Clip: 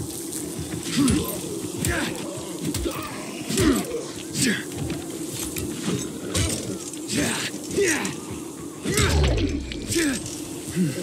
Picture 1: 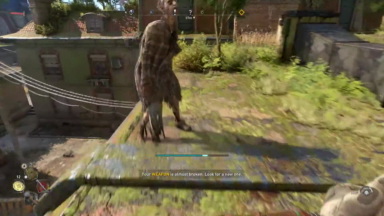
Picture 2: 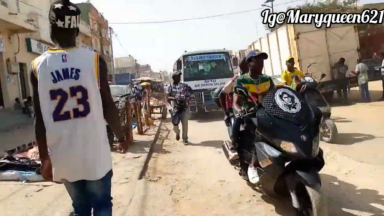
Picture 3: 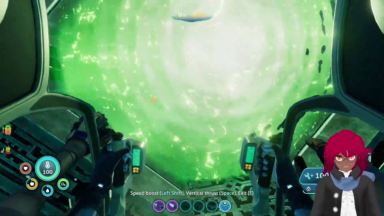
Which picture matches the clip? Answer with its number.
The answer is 1